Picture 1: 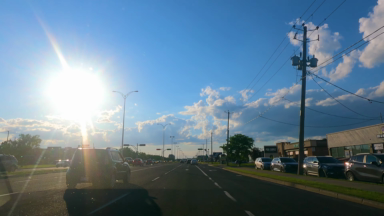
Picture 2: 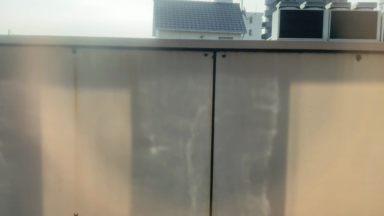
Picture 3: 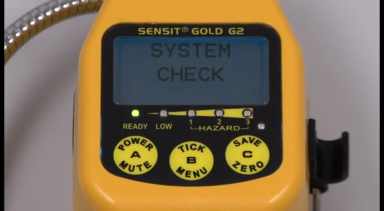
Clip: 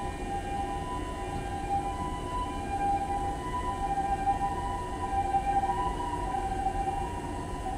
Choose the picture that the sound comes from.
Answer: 2